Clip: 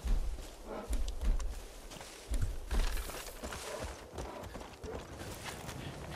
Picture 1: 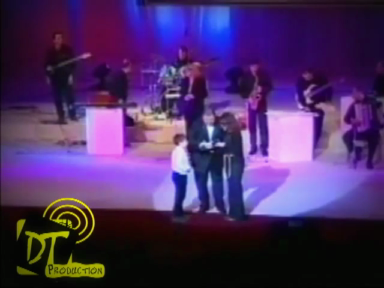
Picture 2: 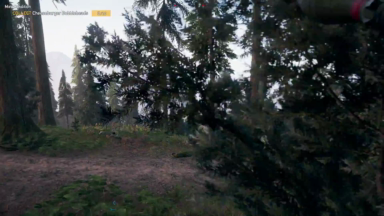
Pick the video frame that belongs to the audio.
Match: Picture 2